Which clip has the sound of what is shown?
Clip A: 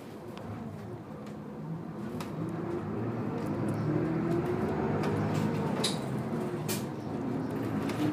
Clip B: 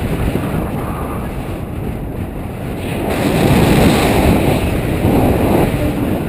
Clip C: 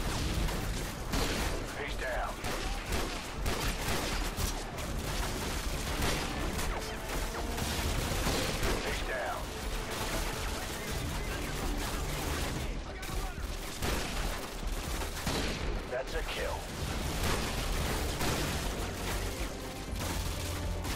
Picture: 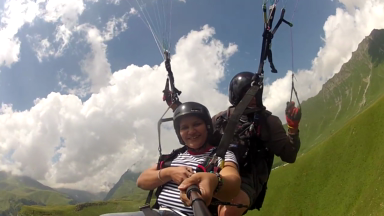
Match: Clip B